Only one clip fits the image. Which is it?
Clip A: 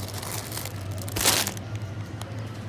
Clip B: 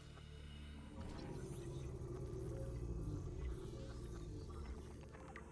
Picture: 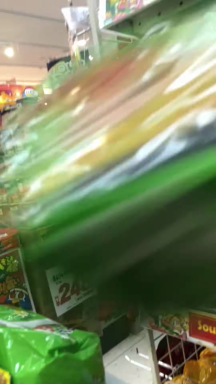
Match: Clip A